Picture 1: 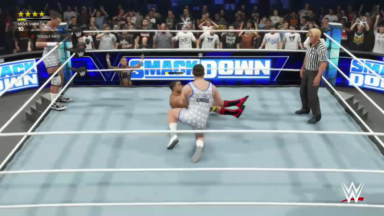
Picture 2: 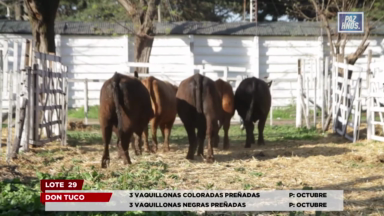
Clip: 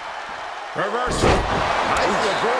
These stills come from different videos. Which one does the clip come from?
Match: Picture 1